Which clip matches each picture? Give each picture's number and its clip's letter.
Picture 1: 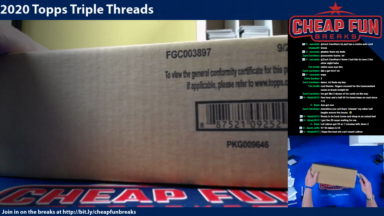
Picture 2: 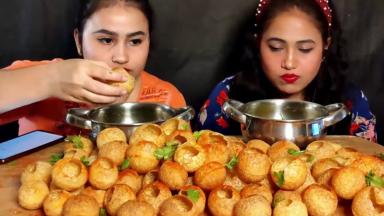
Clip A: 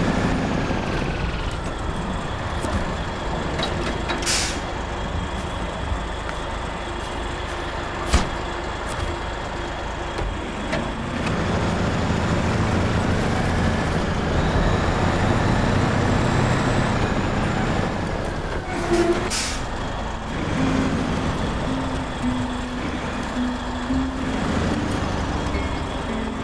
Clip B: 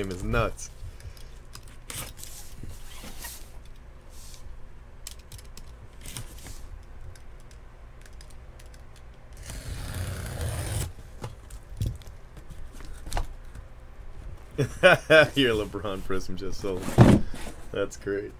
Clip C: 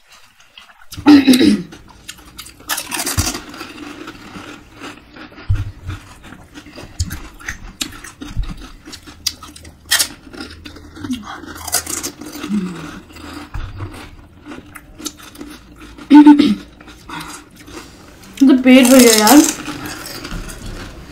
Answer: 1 B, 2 C